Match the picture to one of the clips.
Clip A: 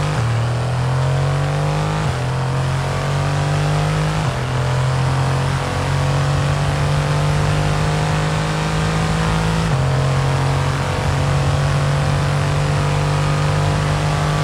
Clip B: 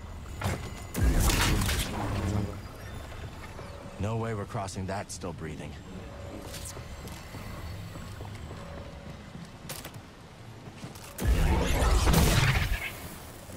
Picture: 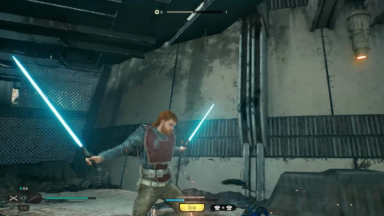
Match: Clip B